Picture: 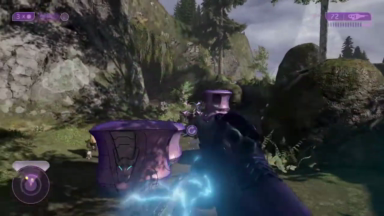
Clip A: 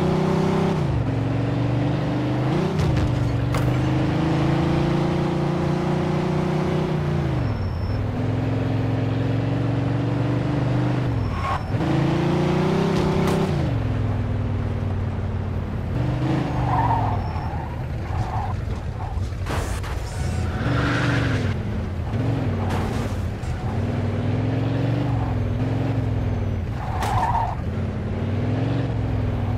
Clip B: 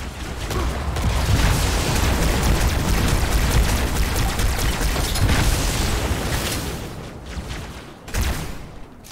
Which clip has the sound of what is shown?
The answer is B